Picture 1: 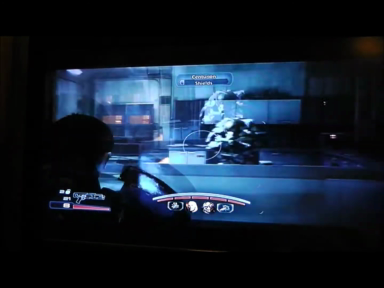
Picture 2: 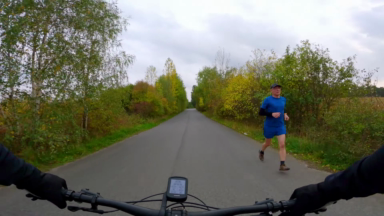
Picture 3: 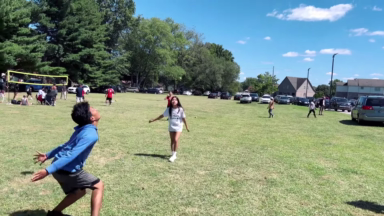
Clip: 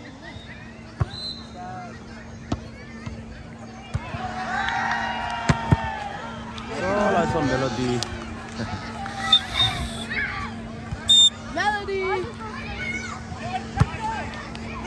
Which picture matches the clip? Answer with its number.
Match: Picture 3